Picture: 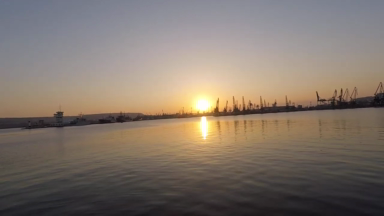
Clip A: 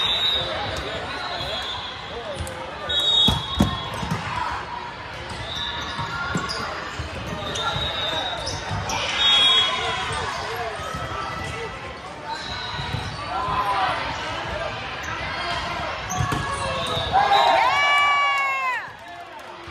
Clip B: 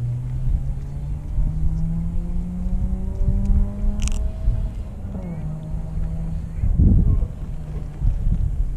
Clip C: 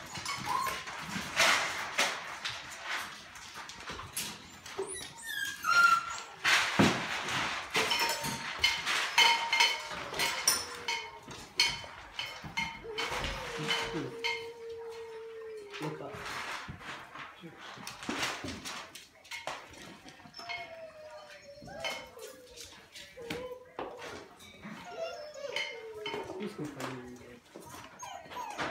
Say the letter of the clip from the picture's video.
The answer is B